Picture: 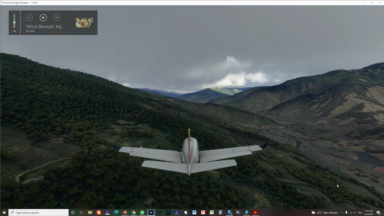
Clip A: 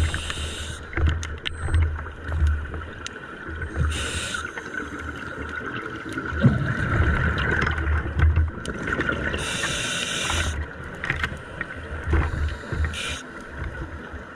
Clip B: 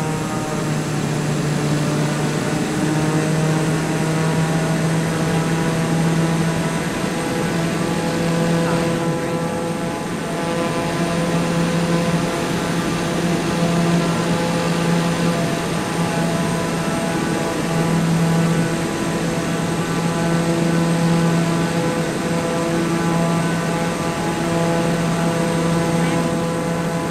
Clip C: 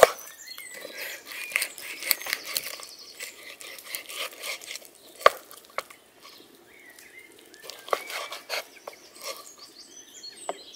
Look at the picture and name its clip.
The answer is B